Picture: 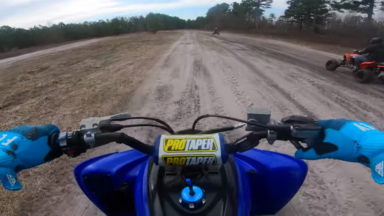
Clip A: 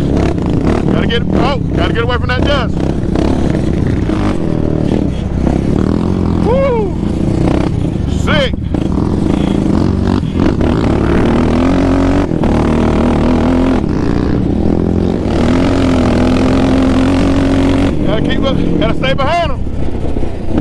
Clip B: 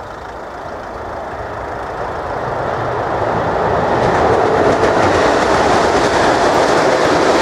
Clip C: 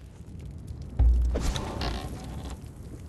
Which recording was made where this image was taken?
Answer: A